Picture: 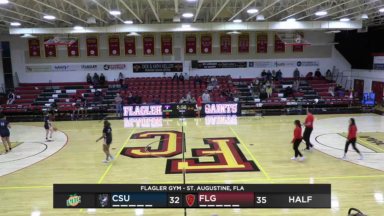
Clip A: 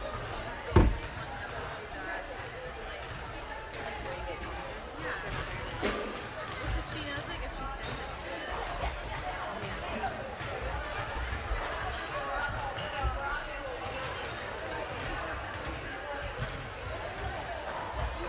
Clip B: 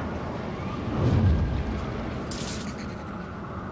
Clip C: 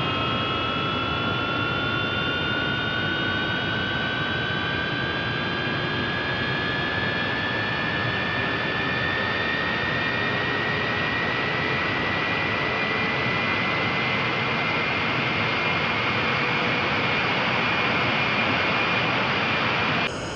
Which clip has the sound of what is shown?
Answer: A